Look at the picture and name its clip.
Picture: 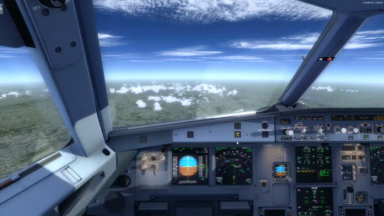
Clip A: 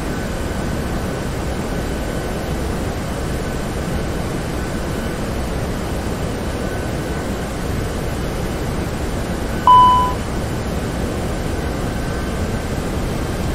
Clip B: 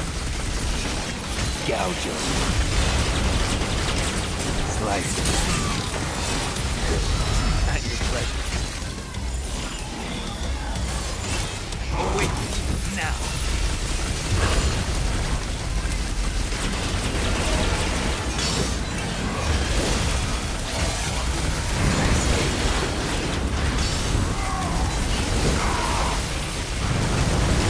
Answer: A